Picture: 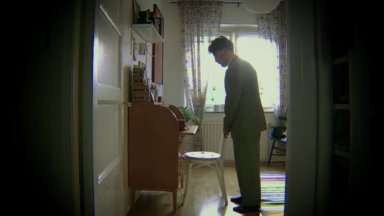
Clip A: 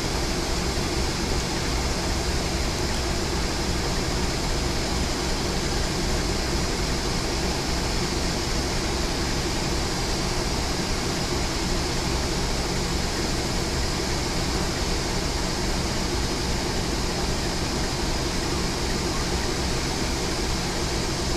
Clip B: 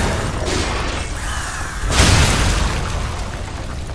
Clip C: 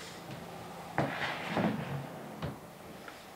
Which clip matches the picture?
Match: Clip C